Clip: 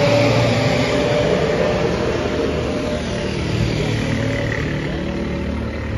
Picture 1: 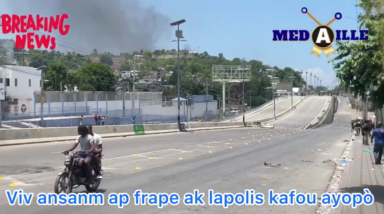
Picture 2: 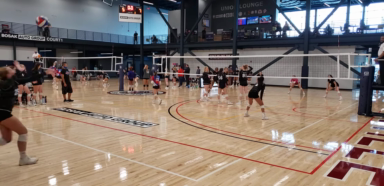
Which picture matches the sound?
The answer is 1